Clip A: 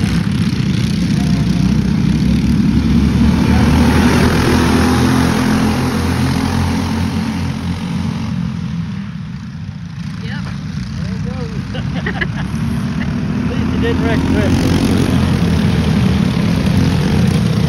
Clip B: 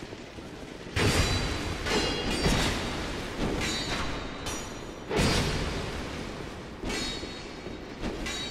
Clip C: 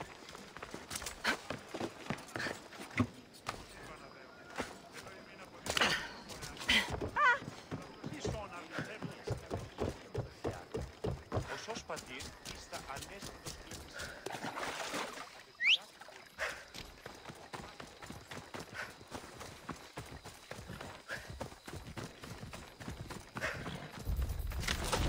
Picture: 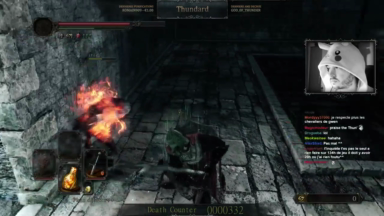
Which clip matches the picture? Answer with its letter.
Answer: B